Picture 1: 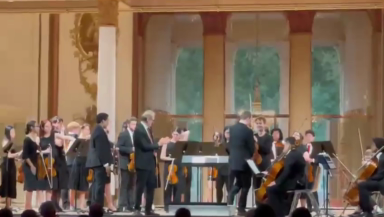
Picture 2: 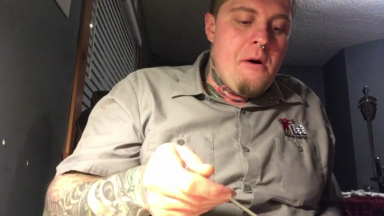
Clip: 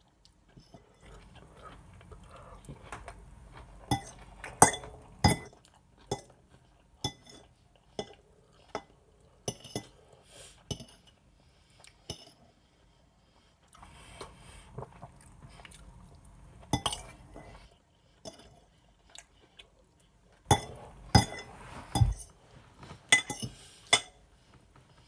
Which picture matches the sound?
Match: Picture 2